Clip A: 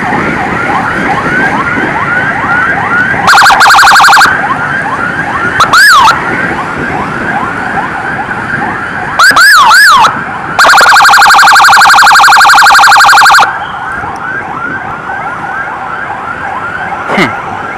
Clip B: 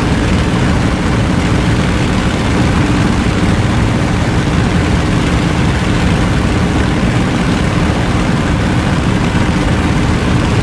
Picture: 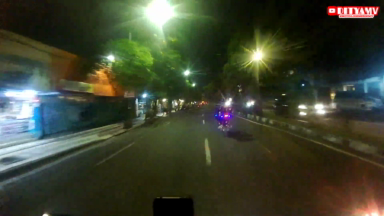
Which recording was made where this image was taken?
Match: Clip A